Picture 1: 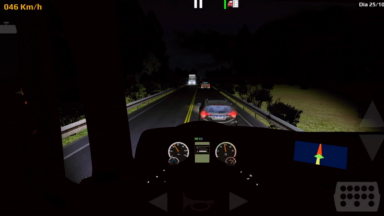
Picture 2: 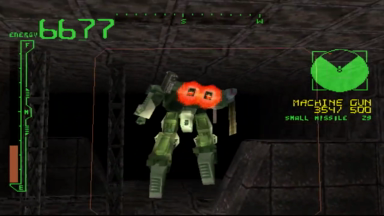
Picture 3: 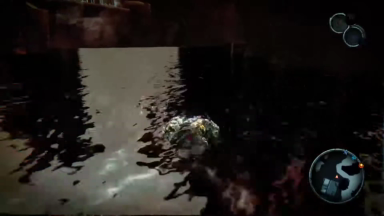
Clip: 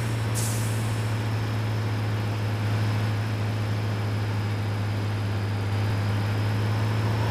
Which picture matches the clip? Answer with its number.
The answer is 1